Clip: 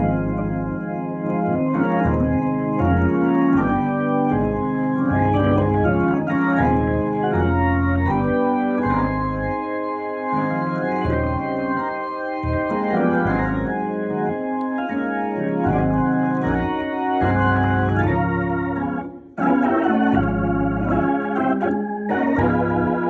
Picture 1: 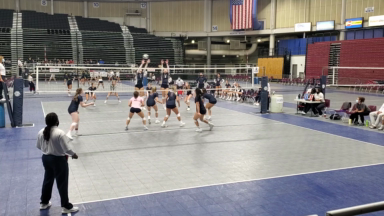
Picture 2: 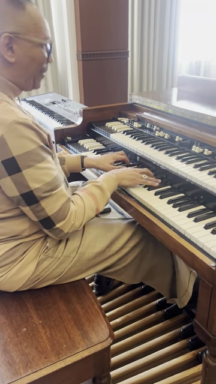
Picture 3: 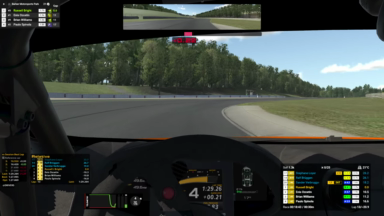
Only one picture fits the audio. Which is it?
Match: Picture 2